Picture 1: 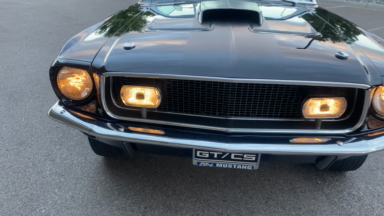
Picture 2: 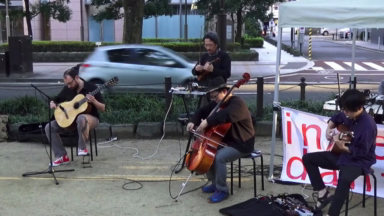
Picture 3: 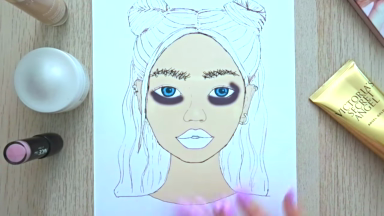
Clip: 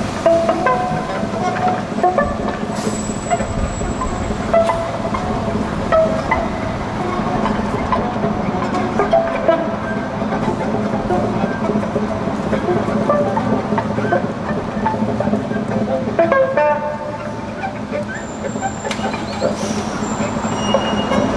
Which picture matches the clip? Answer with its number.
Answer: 2